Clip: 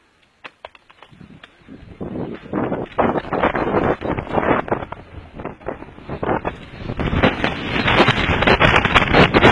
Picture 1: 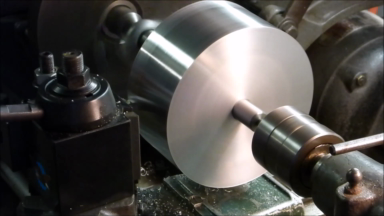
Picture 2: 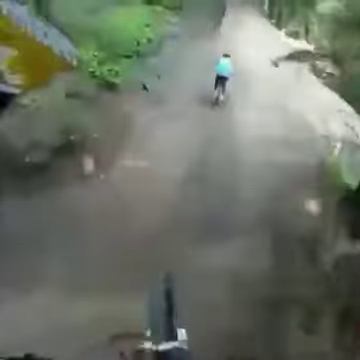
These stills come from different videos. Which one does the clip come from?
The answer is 2